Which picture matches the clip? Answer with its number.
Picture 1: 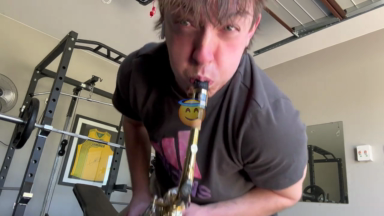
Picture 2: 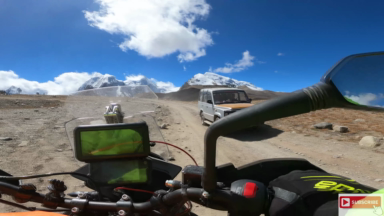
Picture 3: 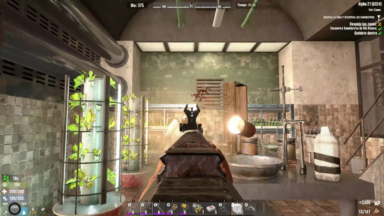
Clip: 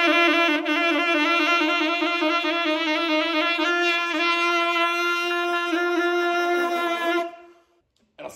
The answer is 1